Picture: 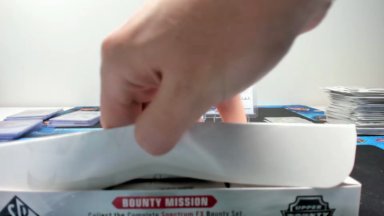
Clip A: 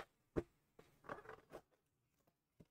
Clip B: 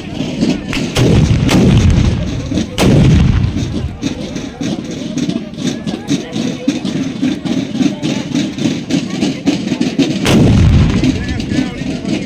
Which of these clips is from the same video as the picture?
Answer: A